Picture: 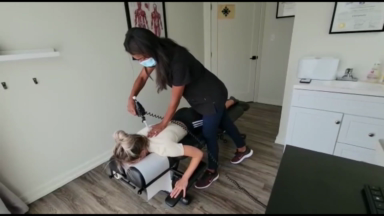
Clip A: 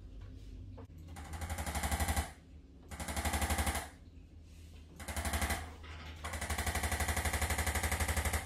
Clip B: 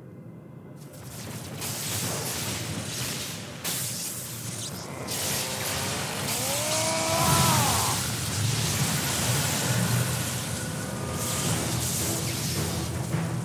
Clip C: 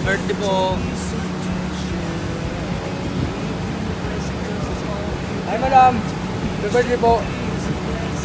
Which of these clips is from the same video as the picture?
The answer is A